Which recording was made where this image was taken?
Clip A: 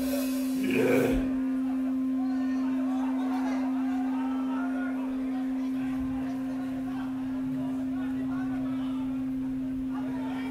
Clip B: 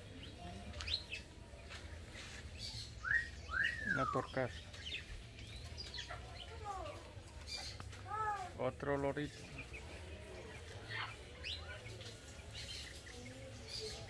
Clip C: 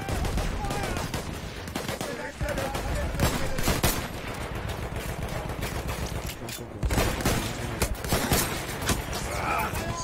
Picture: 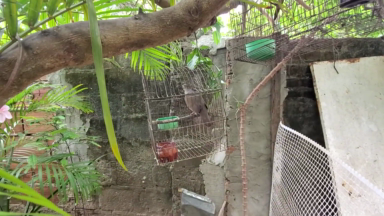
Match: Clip B